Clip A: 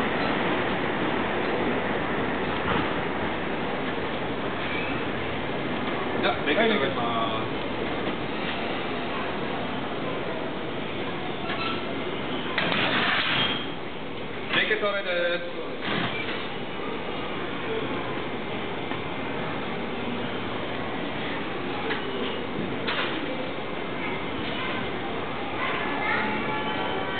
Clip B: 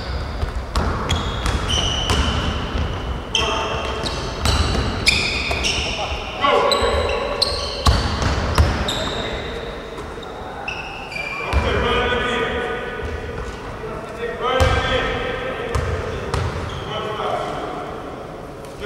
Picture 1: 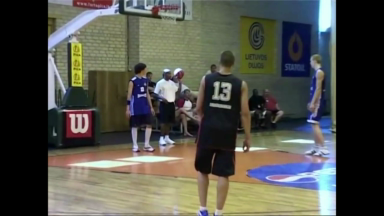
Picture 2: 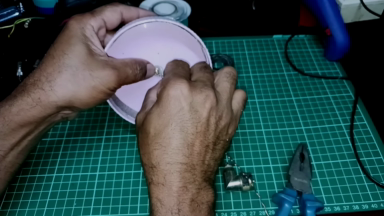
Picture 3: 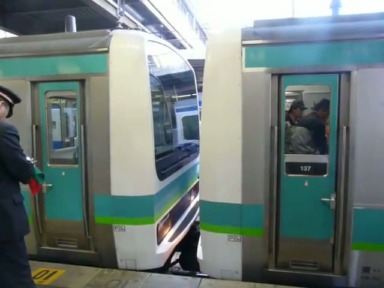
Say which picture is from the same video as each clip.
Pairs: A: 3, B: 1